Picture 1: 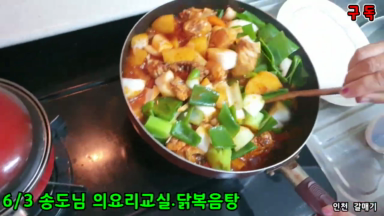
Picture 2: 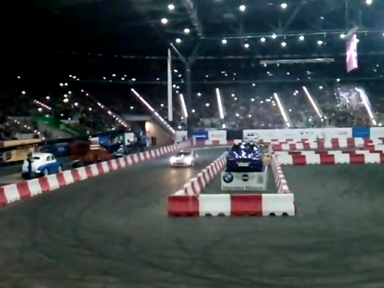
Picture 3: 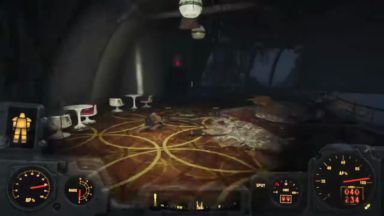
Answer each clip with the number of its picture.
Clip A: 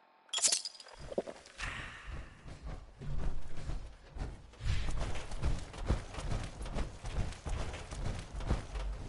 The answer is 3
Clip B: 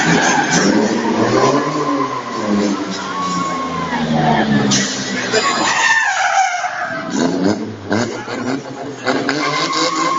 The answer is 2